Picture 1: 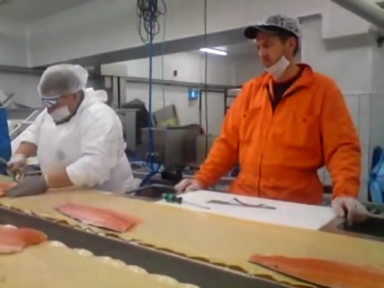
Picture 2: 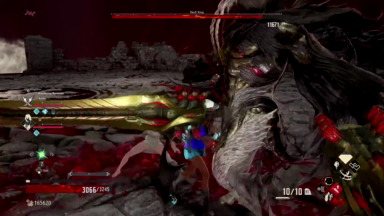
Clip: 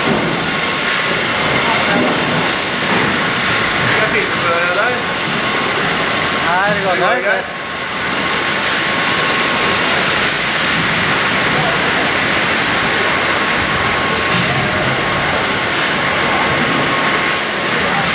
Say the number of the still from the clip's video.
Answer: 1